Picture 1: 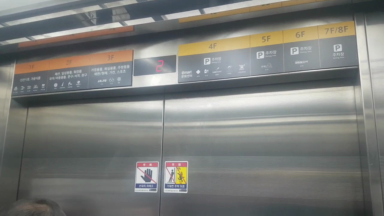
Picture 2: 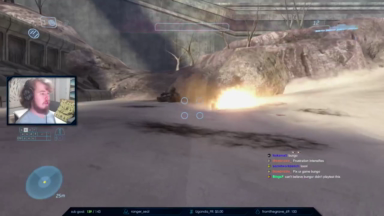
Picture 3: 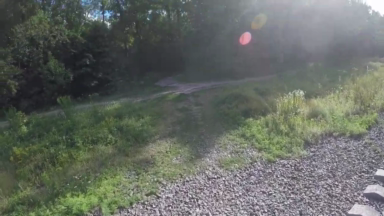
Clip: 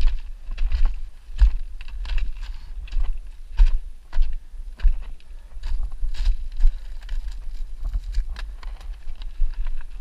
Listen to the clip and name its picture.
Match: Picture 3